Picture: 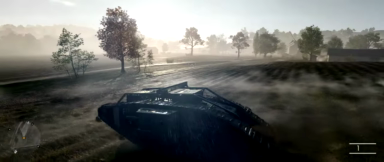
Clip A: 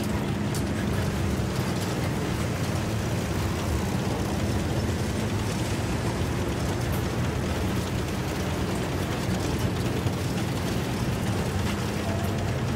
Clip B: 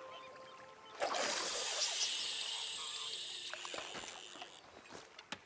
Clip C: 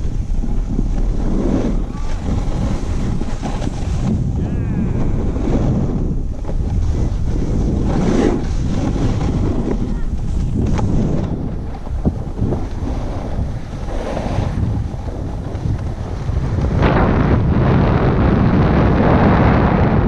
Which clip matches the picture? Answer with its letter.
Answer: A